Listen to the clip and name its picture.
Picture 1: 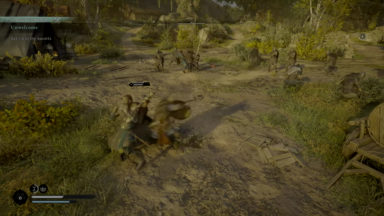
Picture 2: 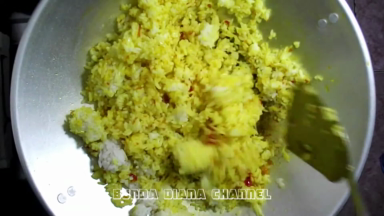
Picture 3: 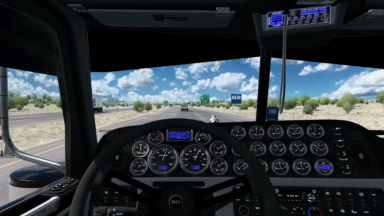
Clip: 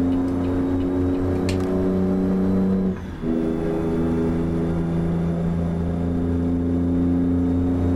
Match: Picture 3